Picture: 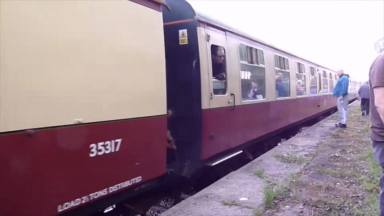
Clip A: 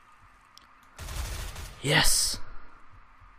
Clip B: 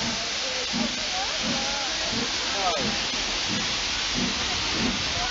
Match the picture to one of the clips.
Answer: B